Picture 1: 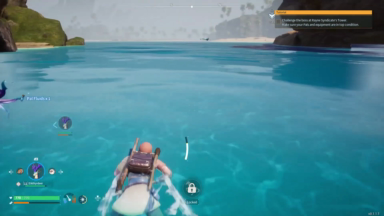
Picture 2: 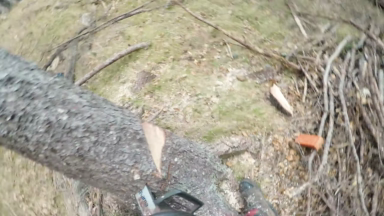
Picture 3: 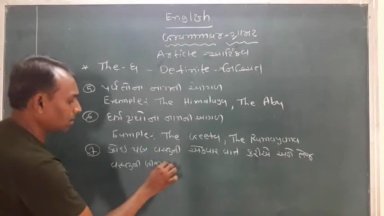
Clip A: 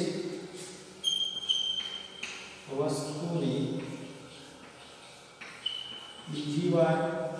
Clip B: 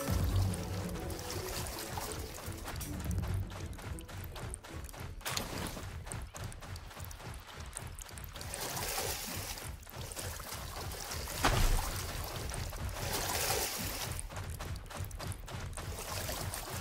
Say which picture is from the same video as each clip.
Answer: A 3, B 1